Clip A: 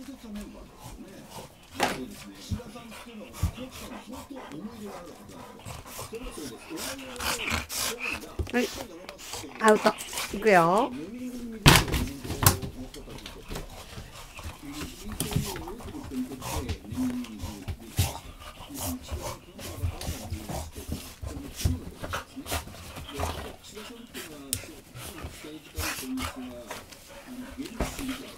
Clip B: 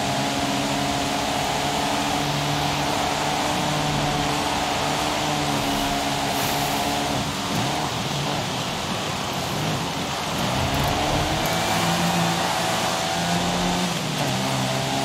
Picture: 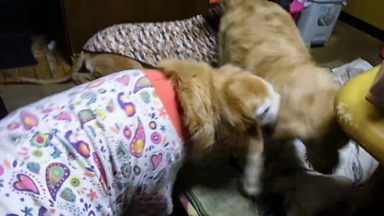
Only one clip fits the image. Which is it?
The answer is A